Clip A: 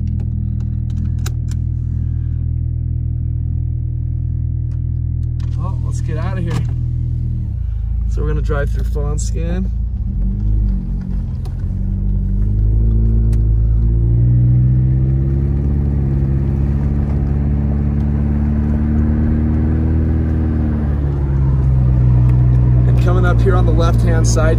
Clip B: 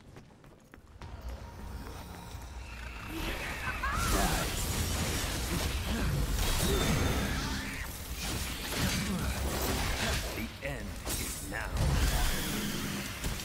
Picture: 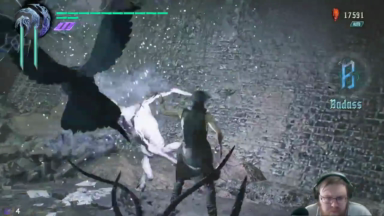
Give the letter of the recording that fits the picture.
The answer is B